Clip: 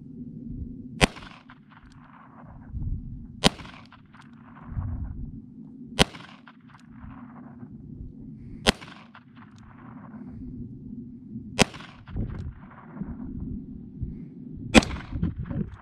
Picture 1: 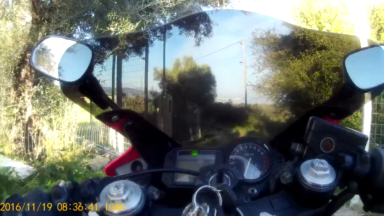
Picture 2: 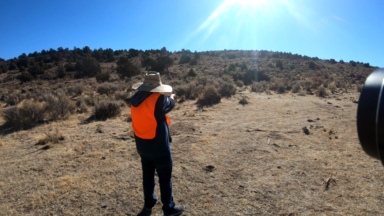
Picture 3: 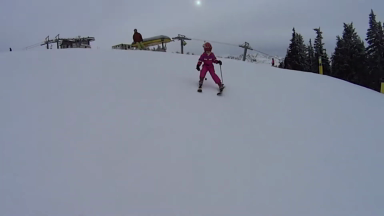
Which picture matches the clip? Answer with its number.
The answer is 2